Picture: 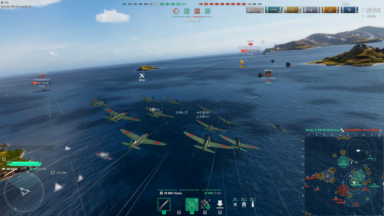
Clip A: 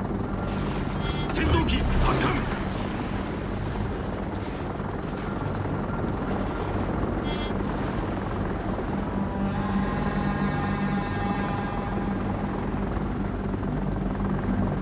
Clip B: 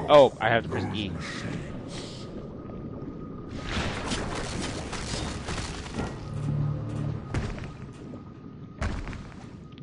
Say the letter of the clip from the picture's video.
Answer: A